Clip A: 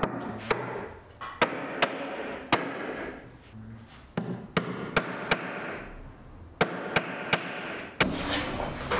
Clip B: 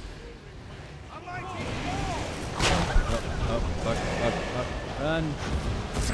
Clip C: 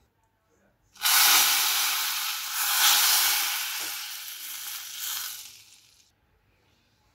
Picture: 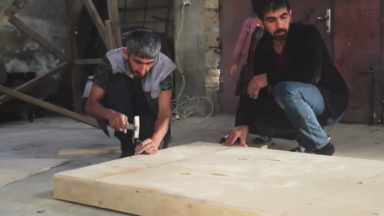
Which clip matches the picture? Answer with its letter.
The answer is A